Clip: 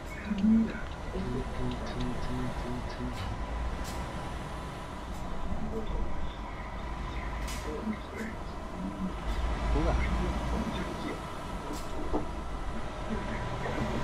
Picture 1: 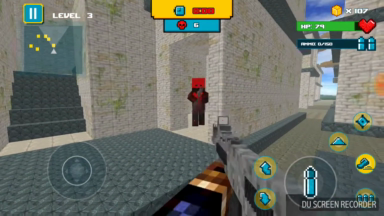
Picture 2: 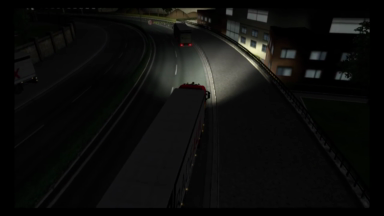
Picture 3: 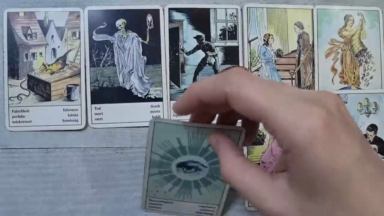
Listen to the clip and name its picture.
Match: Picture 2